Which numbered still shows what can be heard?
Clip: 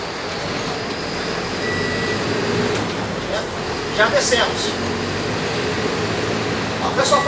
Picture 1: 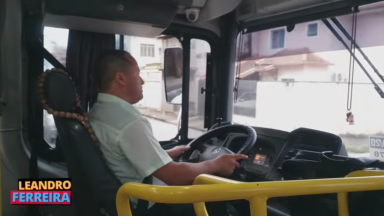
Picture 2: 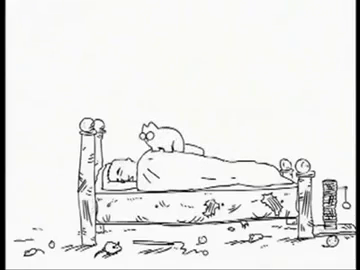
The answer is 1